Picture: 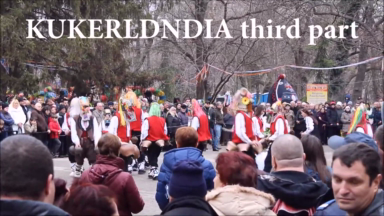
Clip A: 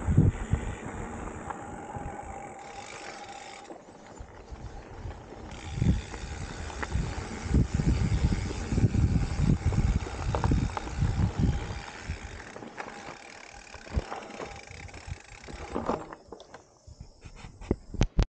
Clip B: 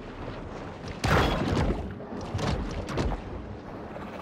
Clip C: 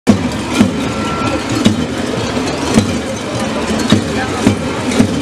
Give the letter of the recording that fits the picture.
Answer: C